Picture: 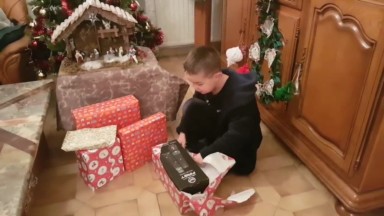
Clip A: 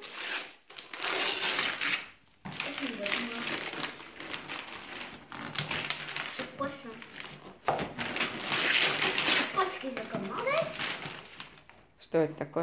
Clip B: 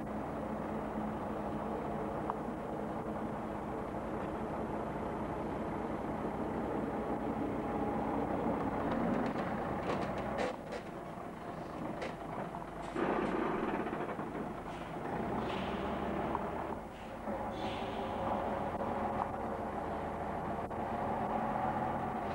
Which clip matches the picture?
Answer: A